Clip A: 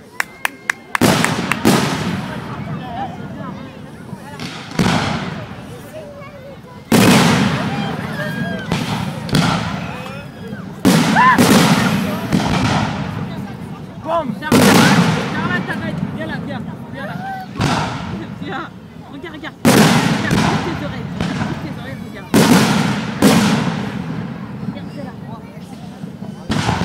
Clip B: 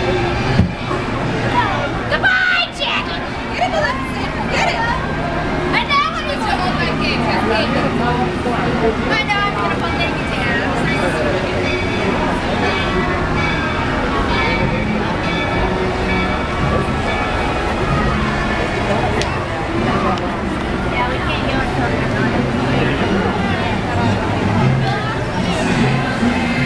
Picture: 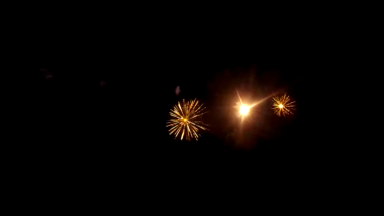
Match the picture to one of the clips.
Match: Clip A